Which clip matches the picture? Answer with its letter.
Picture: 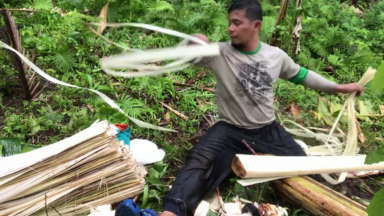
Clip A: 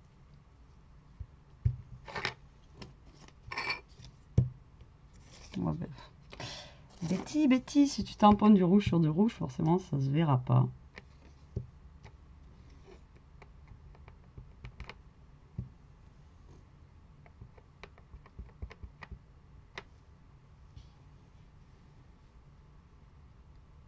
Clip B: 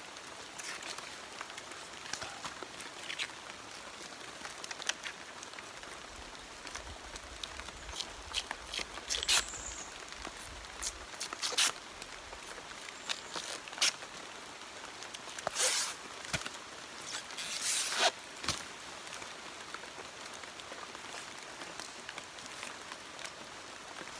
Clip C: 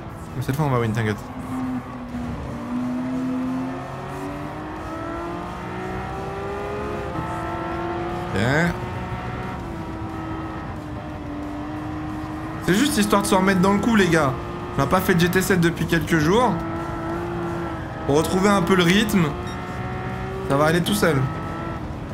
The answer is B